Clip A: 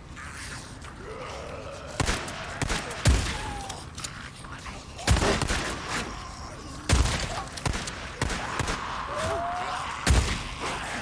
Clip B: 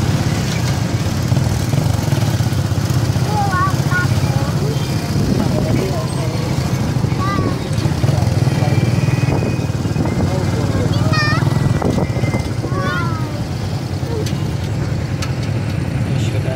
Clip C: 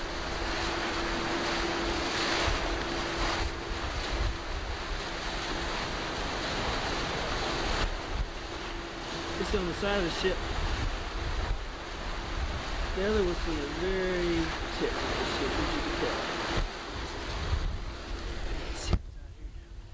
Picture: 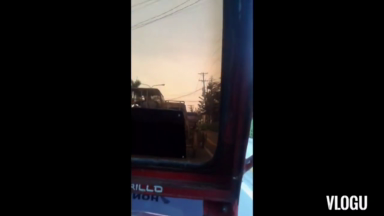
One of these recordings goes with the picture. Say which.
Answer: B